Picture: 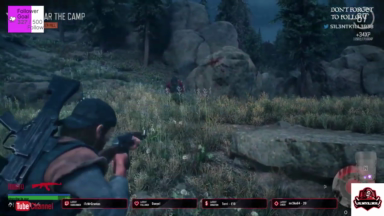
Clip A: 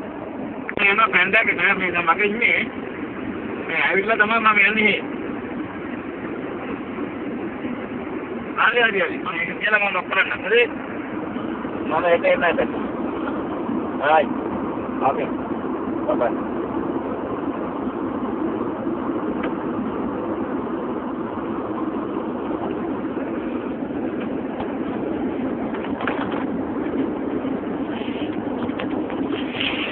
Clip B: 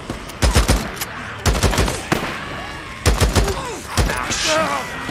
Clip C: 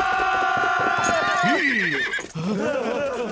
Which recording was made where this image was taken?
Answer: B